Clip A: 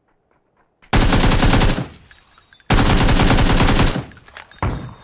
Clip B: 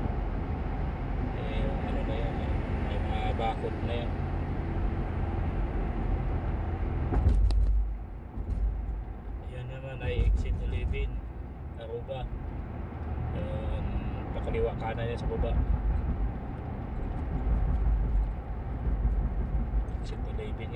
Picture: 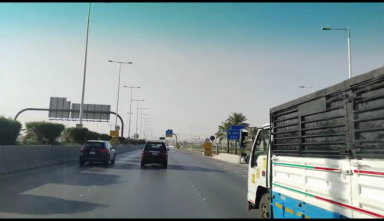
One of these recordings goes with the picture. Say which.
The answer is B